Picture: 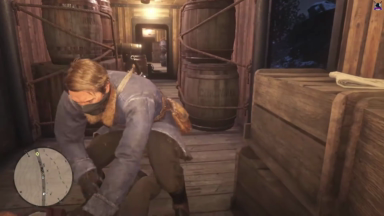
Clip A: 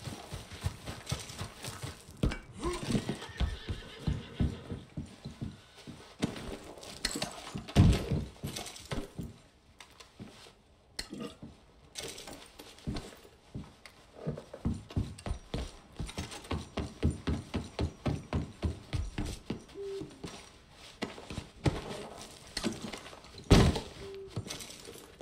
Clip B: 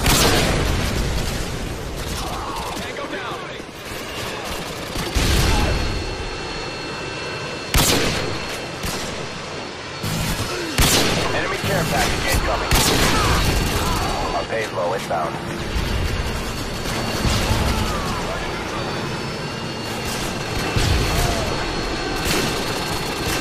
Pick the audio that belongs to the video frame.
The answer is A